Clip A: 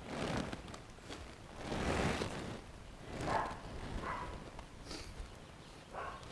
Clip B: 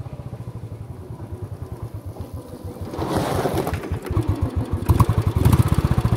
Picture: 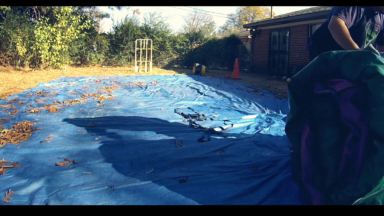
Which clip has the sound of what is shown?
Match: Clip A